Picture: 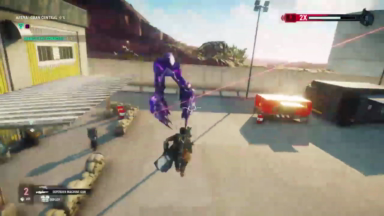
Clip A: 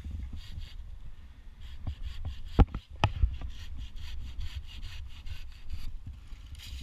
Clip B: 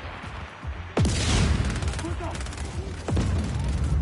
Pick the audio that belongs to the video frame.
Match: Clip B